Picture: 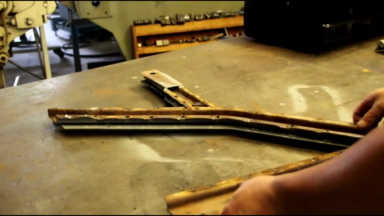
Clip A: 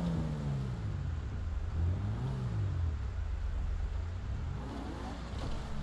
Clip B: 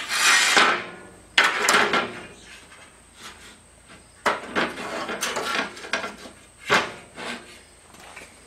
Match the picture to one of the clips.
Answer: B